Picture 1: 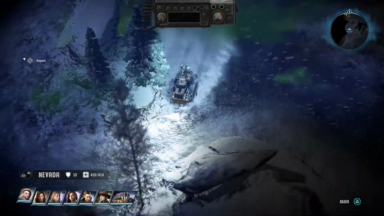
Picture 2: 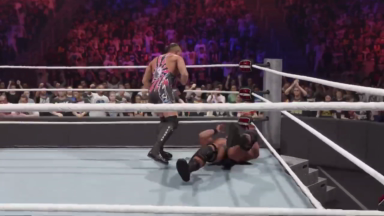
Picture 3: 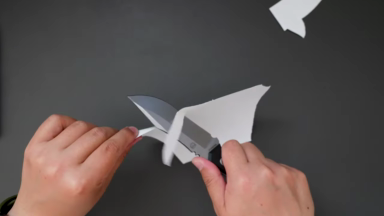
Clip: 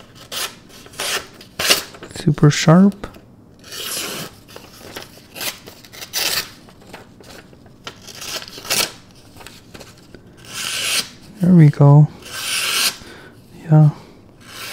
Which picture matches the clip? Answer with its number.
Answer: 3